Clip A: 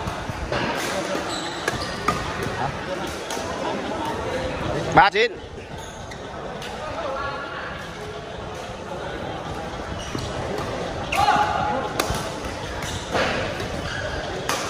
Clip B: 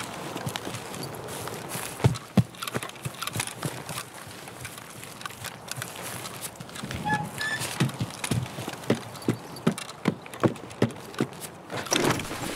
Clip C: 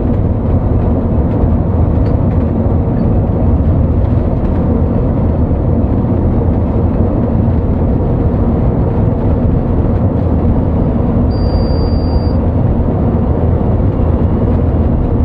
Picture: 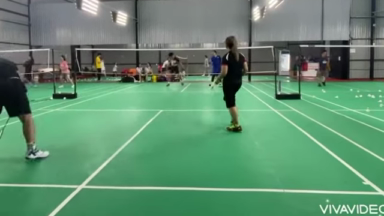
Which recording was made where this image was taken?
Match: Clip A